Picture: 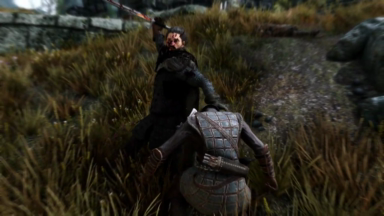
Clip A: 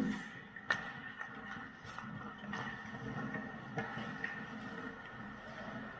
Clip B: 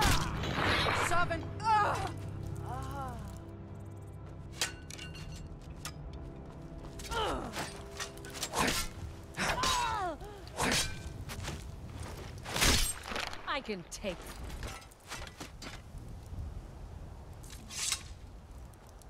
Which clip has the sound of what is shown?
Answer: B